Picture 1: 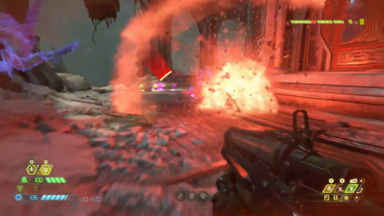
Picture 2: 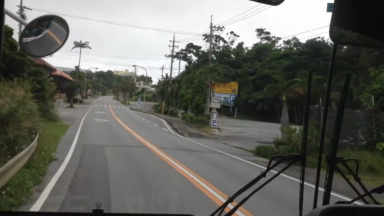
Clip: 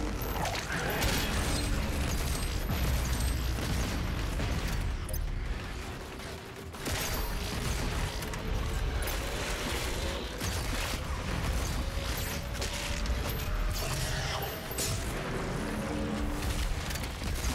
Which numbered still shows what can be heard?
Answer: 1